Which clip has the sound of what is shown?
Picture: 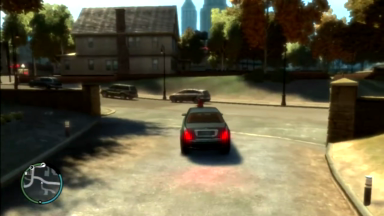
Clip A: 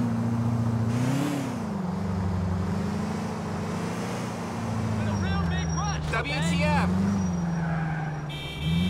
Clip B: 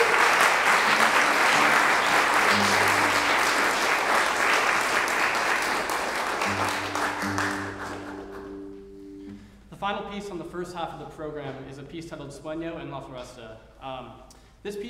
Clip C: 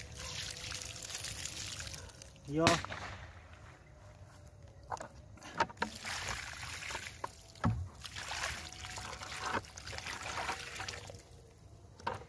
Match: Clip A